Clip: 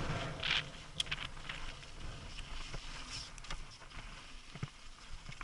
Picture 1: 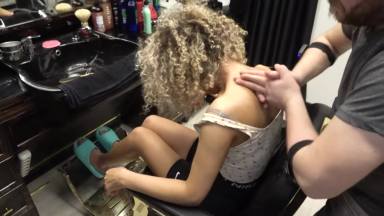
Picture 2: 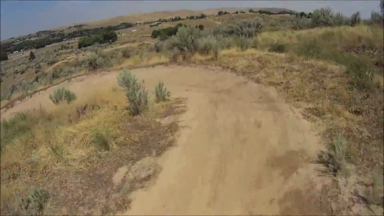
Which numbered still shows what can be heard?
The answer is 2